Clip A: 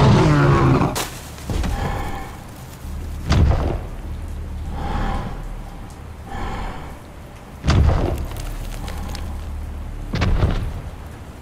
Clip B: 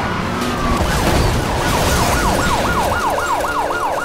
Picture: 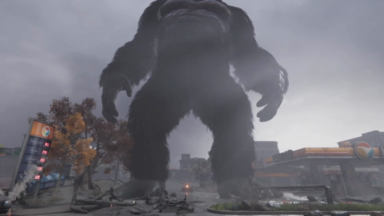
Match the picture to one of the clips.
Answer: A